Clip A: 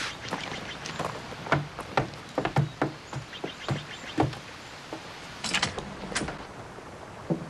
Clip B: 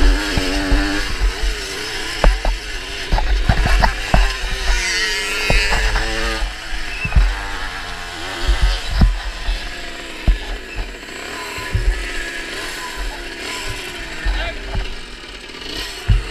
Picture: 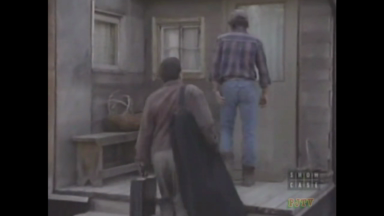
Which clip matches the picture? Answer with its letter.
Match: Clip A